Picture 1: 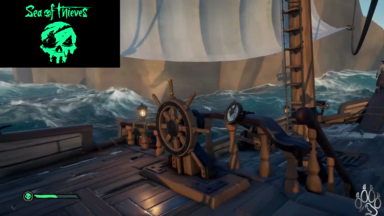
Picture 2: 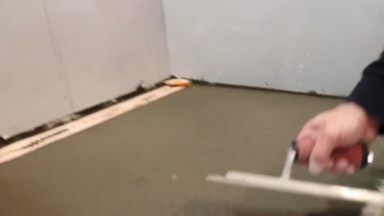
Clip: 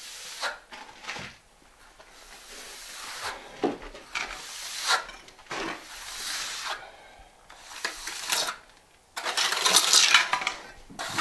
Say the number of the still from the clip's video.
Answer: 2